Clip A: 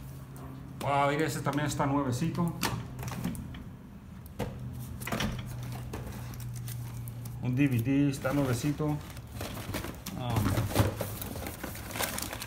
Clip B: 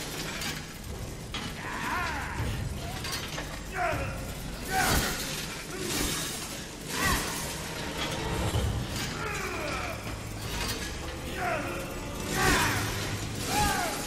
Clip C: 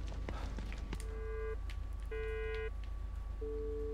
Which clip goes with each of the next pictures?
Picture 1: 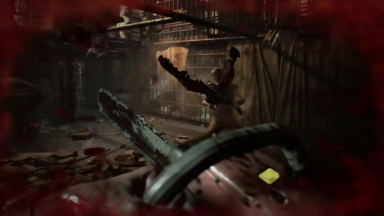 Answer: B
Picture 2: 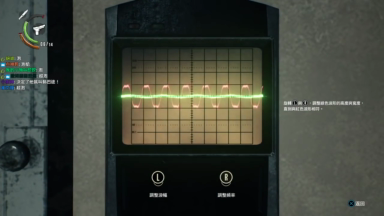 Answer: C